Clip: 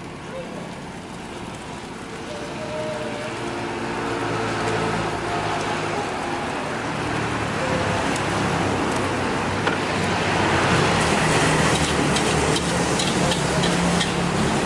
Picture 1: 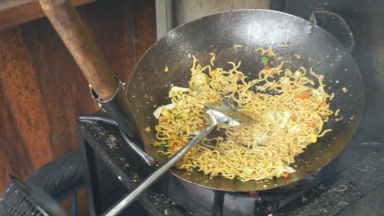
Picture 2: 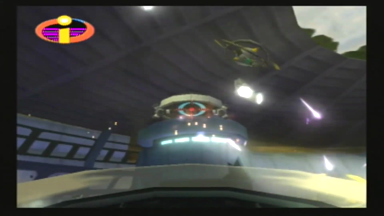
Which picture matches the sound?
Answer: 1